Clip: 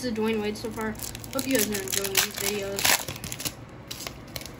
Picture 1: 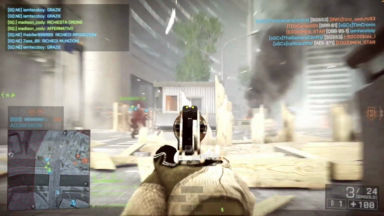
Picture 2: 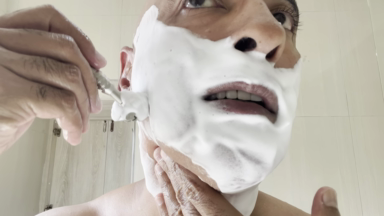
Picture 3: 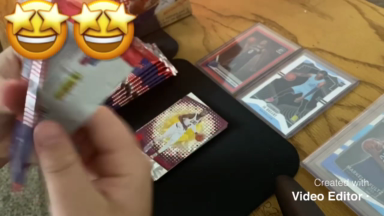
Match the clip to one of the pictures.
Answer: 3